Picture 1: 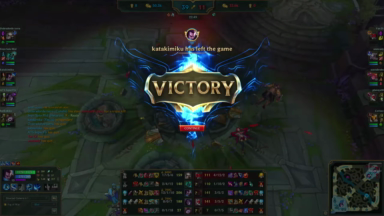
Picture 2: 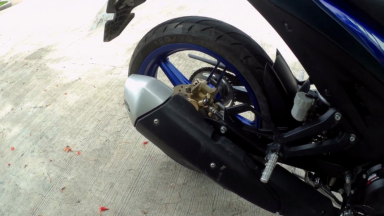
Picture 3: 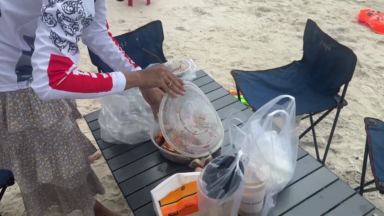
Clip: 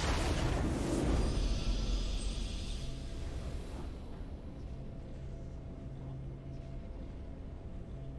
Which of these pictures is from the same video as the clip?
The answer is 1